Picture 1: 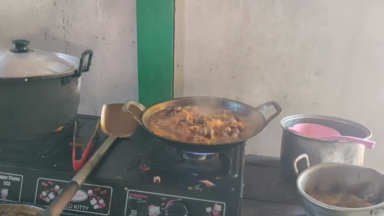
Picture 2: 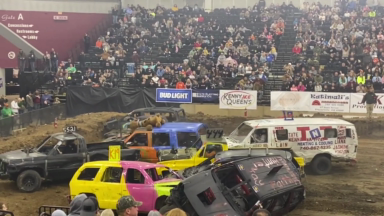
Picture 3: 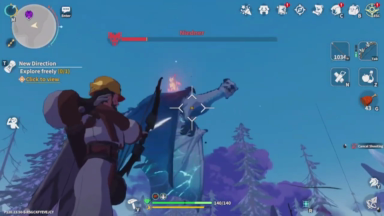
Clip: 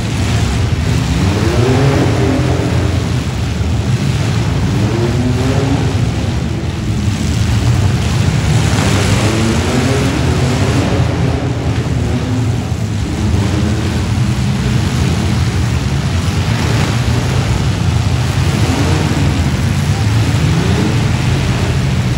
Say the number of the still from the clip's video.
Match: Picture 2